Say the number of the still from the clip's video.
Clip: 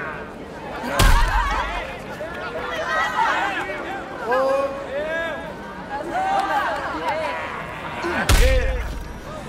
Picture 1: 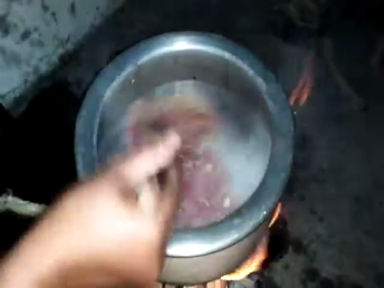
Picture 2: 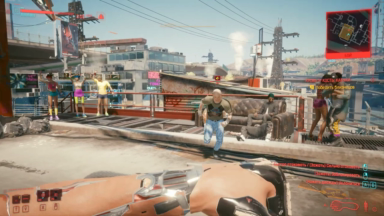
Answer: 2